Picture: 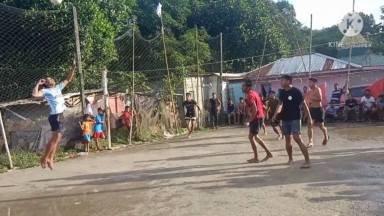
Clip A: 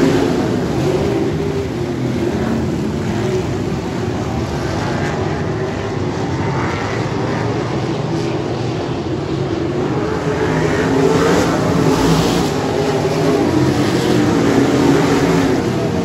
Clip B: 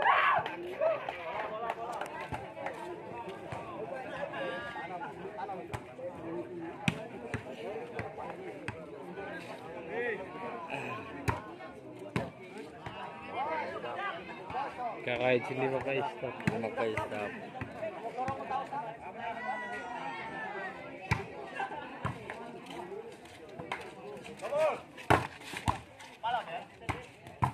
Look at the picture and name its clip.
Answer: B